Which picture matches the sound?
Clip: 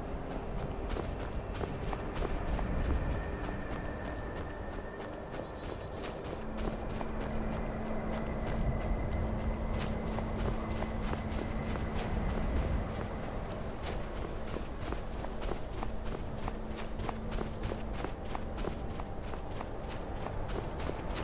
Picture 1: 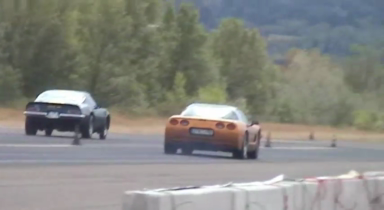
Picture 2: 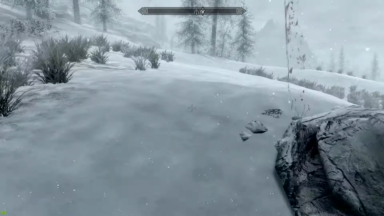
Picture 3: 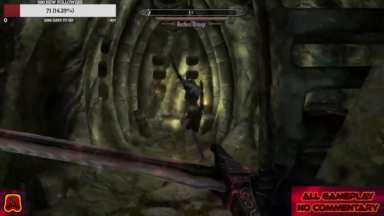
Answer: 2